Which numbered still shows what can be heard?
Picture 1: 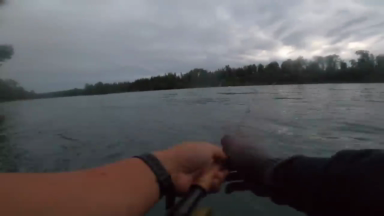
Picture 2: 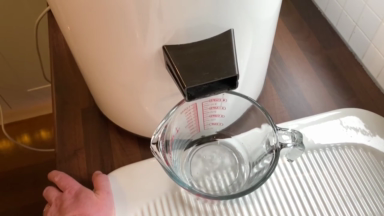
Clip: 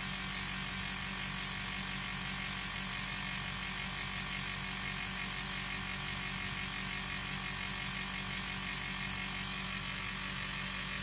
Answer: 2